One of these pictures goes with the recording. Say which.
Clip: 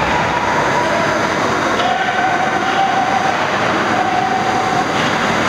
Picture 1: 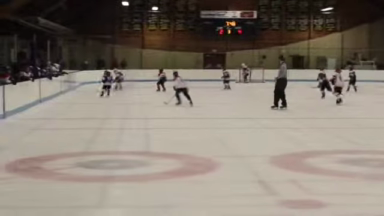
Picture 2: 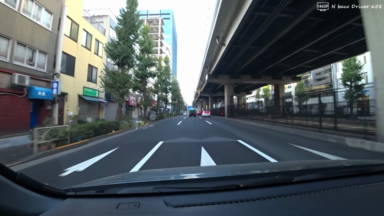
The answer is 1